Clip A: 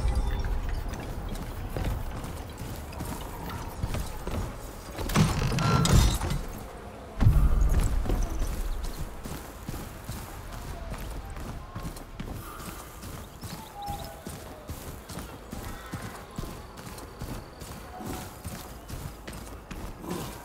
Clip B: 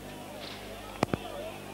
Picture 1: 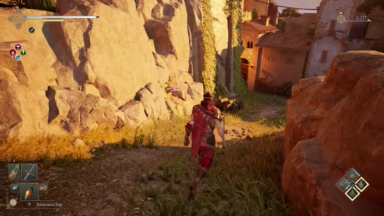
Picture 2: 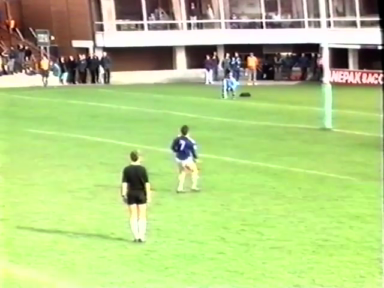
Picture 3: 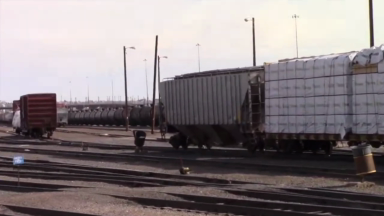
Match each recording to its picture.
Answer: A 1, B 2